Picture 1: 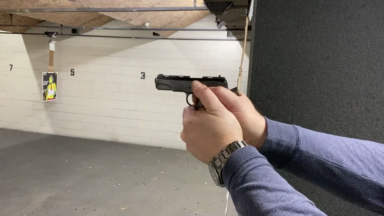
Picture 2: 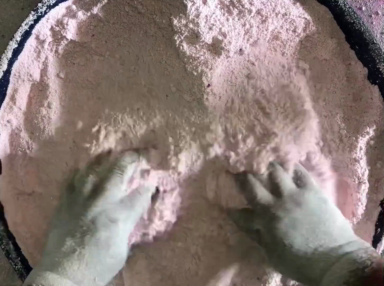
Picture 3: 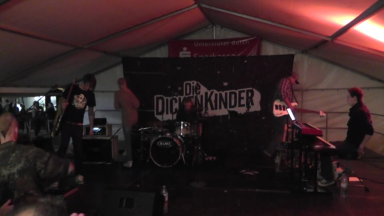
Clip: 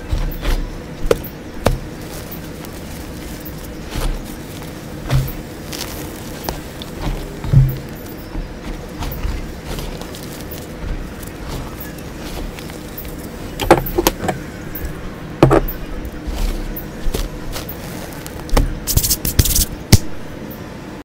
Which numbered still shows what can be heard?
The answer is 2